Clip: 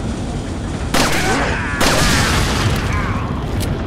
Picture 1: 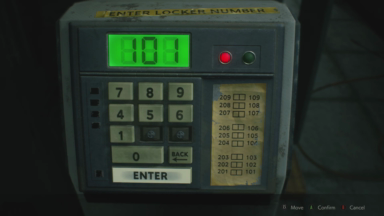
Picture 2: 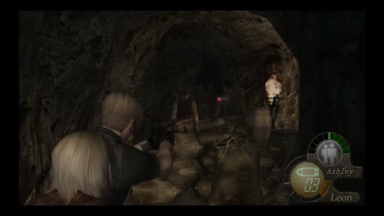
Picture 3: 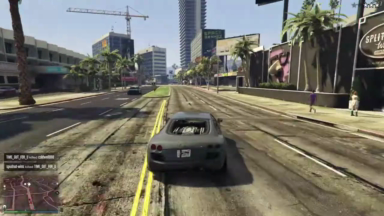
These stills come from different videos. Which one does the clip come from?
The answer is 2